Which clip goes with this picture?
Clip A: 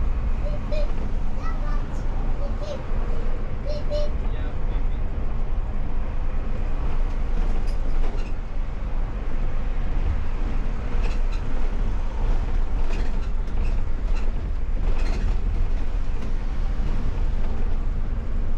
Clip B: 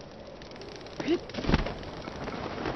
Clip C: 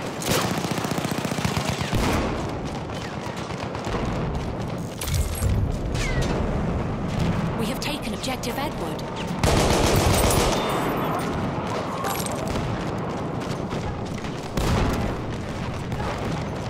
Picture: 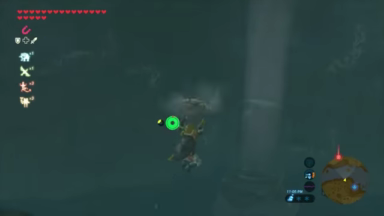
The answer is B